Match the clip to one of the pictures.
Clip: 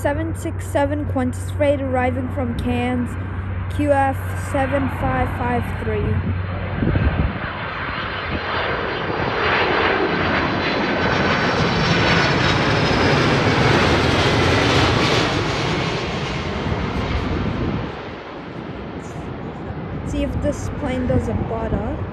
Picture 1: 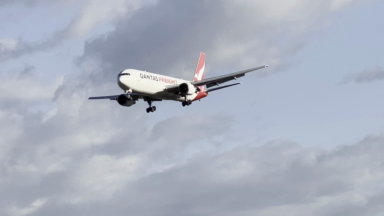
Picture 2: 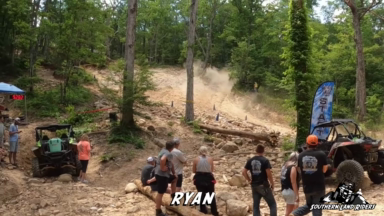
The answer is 1